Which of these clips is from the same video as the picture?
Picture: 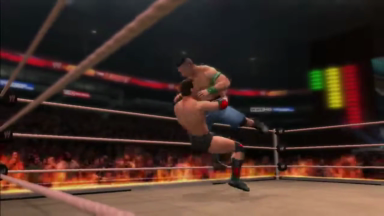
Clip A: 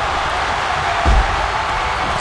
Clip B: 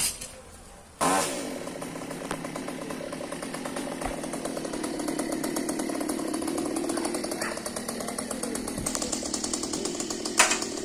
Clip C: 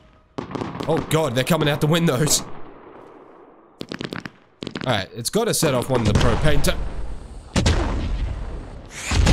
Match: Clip A